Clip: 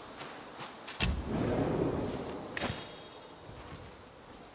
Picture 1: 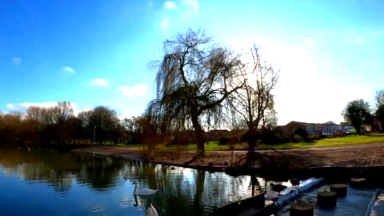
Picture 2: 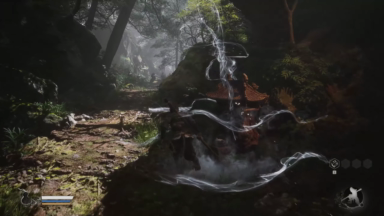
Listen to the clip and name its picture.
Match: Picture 2